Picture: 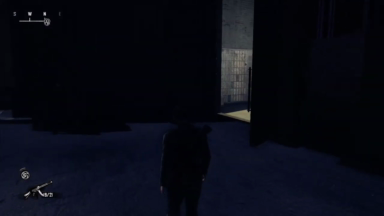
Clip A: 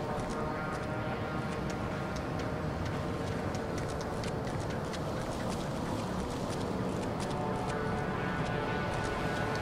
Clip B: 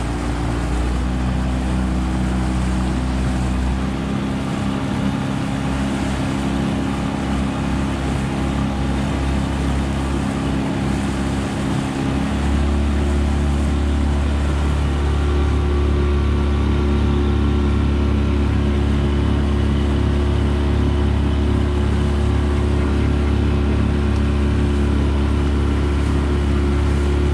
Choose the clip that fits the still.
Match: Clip A